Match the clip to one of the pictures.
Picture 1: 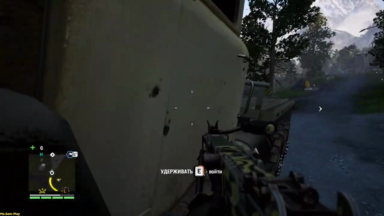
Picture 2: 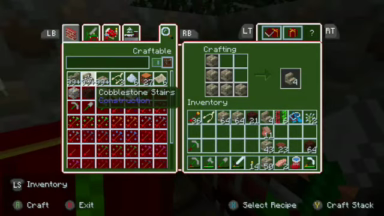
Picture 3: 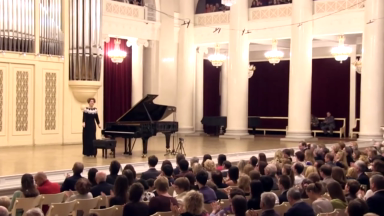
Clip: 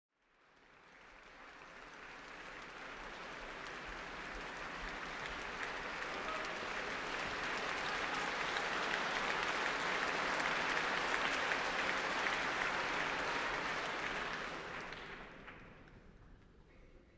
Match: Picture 3